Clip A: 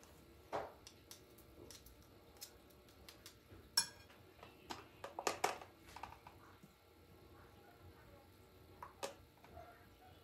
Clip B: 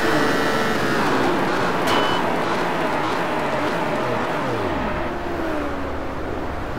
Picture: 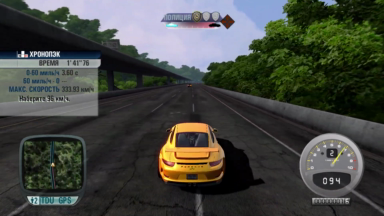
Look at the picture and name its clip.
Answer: B